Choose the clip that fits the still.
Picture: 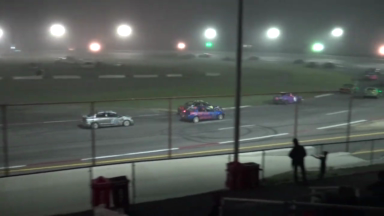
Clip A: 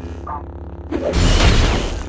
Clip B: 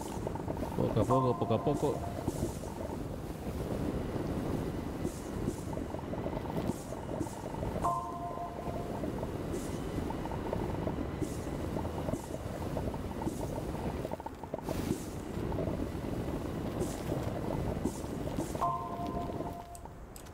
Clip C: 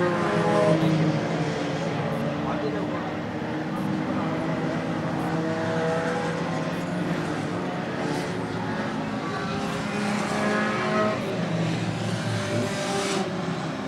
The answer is C